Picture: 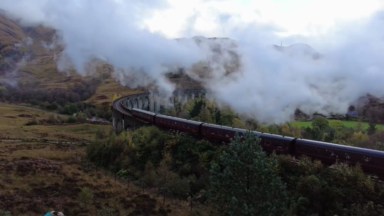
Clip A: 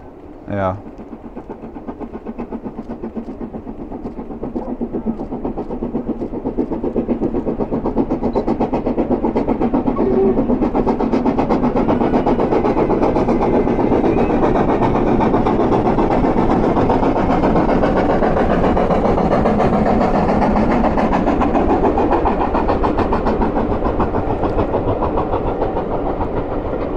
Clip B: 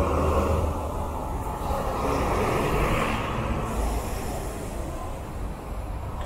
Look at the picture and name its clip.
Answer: A